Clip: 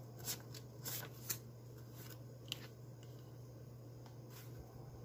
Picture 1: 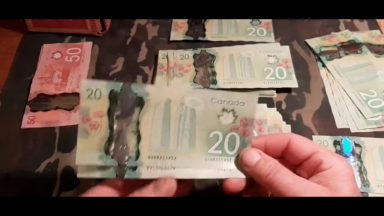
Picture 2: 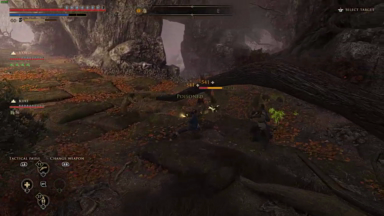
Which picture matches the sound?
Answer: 1